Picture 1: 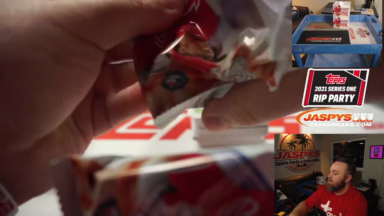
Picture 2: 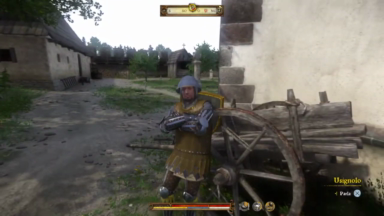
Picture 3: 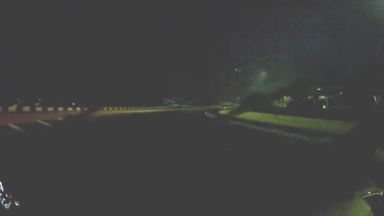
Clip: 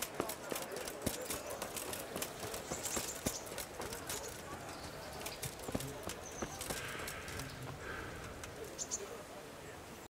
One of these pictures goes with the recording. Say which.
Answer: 2